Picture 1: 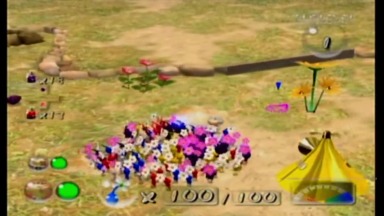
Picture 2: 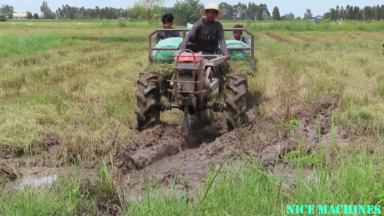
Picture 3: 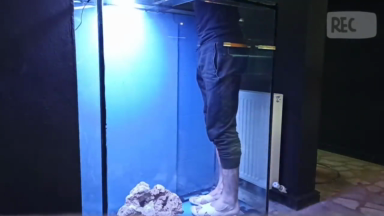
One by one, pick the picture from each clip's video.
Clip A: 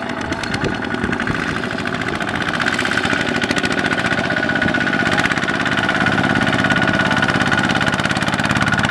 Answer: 2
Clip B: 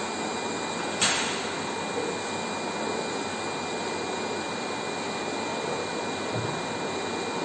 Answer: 3